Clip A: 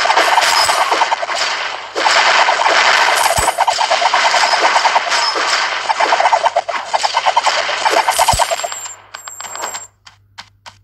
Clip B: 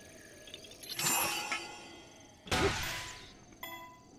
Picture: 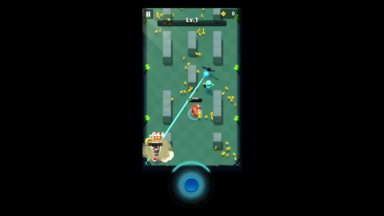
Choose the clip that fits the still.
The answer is A